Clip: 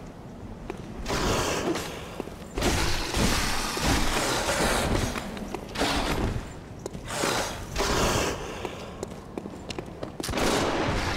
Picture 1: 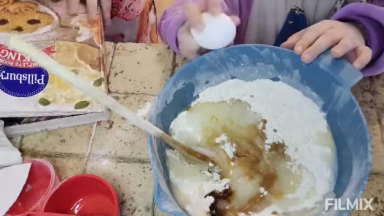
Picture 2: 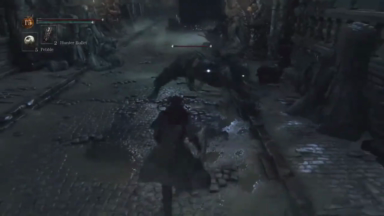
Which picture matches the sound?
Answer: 2